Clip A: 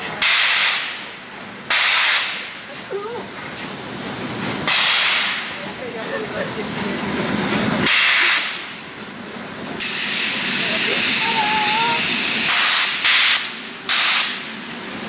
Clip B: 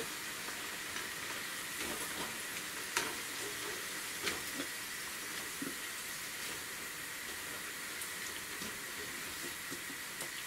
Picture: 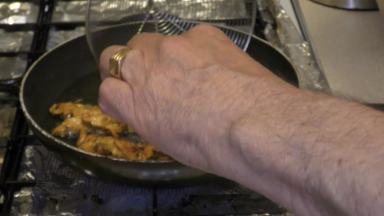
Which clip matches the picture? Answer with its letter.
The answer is B